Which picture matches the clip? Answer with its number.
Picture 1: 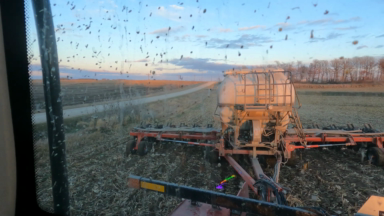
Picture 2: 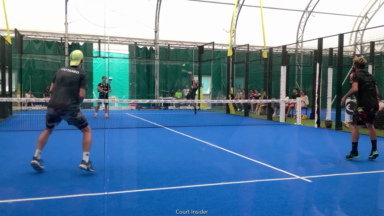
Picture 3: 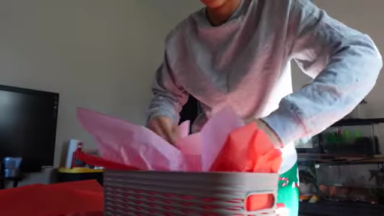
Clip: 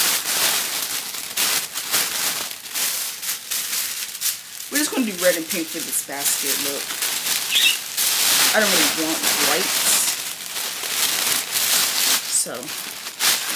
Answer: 3